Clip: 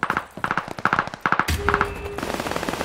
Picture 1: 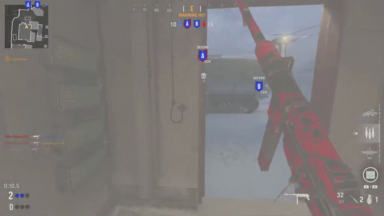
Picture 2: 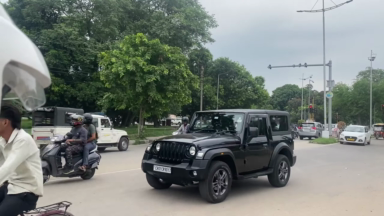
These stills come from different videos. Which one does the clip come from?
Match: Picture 1